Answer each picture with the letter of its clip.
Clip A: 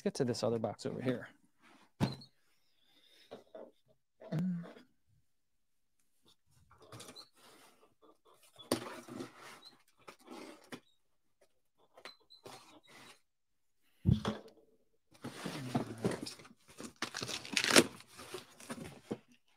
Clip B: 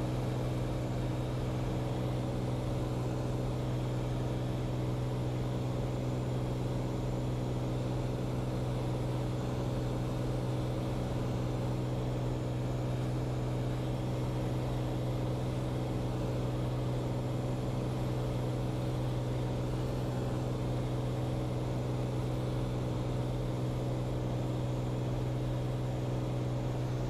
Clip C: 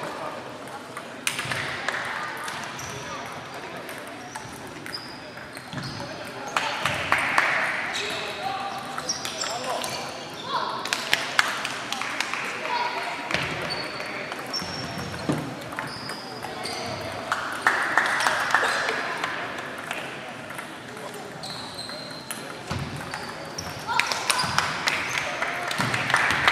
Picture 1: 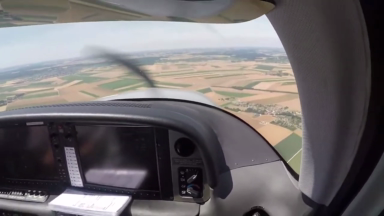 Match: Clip B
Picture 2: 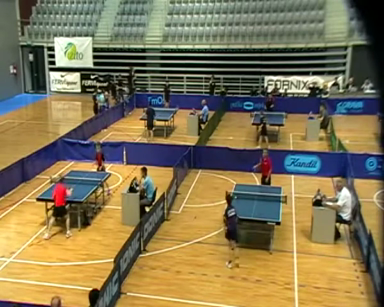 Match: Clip C